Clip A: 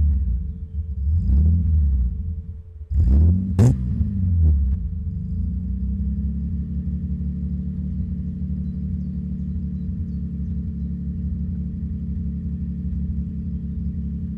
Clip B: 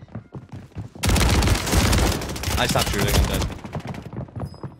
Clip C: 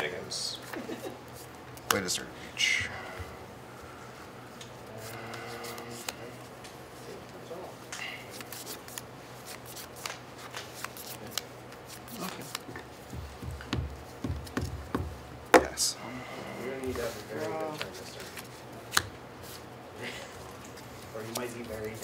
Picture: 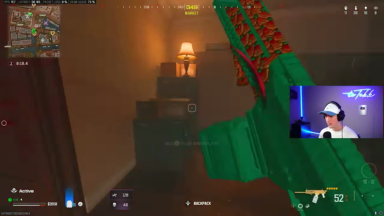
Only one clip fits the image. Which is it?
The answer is B